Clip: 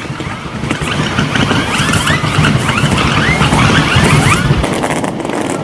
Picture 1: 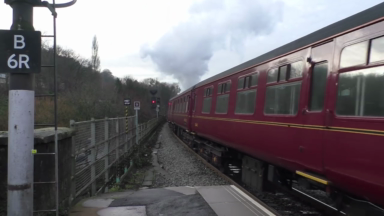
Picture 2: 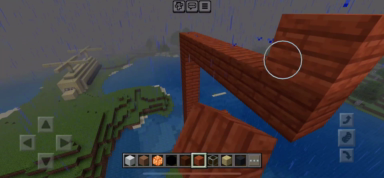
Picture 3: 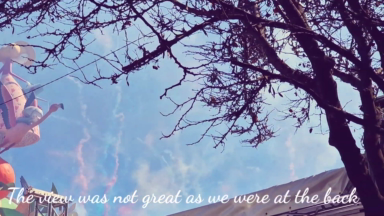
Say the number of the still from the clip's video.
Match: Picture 3